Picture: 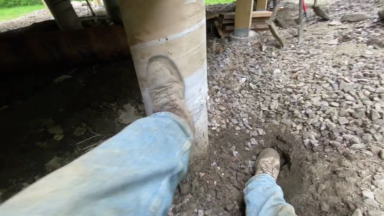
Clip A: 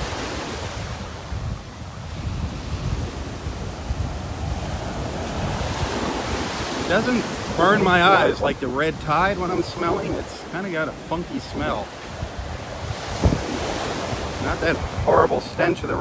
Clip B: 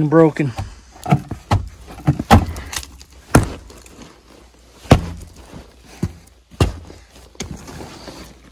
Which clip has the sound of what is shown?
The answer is B